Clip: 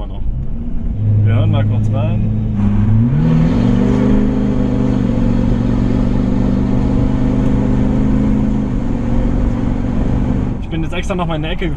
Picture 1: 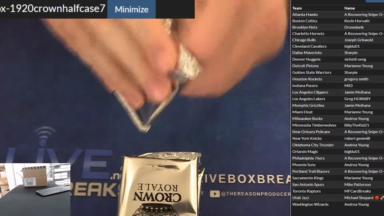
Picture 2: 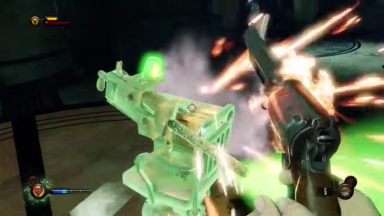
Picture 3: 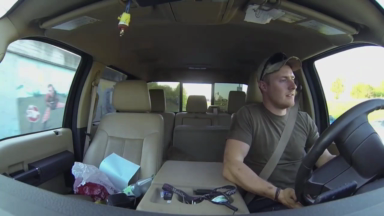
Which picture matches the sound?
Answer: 3